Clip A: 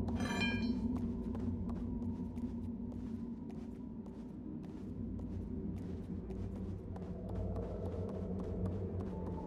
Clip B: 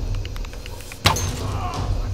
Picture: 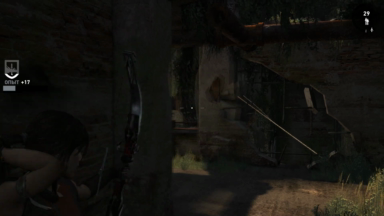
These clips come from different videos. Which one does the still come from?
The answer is B